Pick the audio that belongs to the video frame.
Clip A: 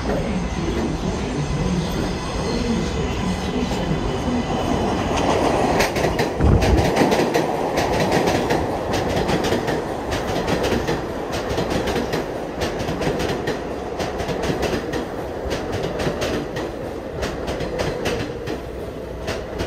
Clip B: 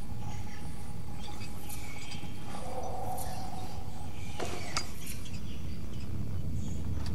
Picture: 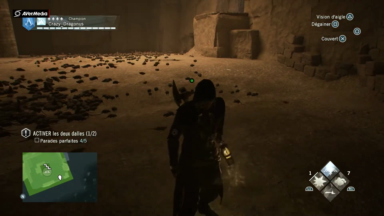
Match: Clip B